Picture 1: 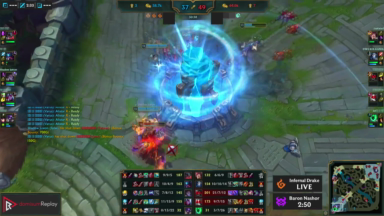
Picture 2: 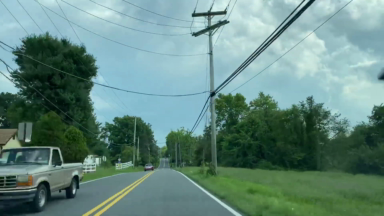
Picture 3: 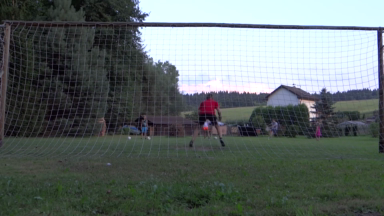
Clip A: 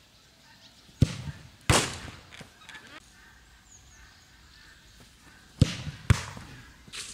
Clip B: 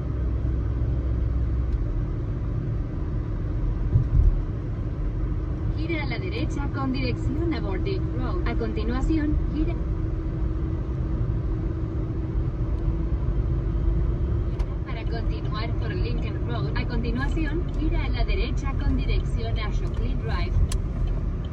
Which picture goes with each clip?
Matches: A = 3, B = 2